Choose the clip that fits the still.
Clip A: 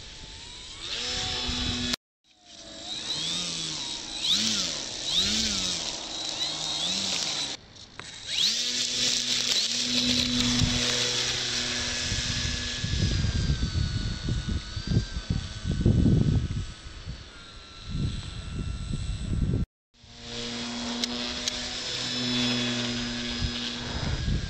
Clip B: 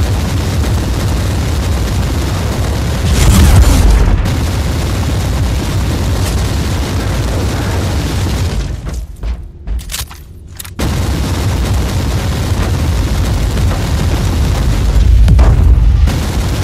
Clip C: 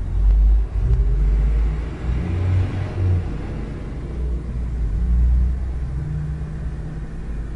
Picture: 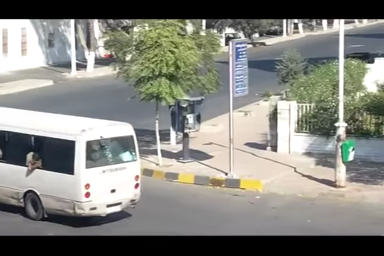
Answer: C